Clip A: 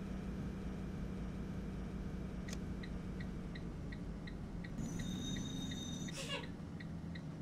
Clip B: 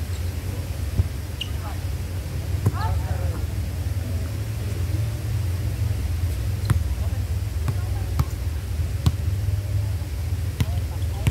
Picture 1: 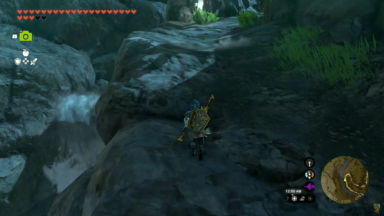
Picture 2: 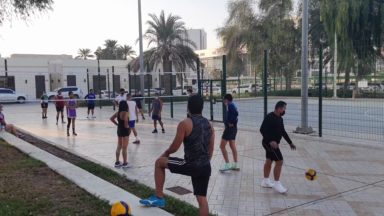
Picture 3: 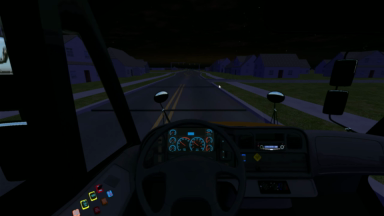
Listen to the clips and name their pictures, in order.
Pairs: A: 3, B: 2